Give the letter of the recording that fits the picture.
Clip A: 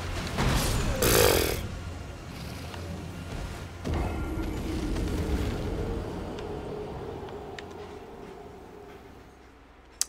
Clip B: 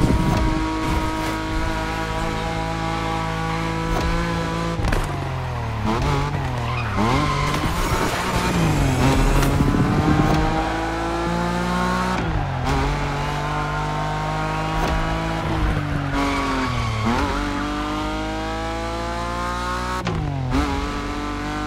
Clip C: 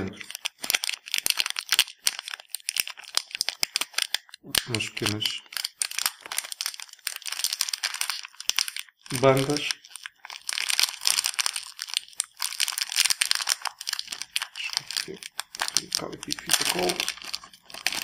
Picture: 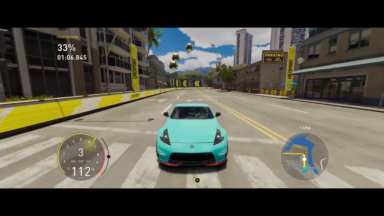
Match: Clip B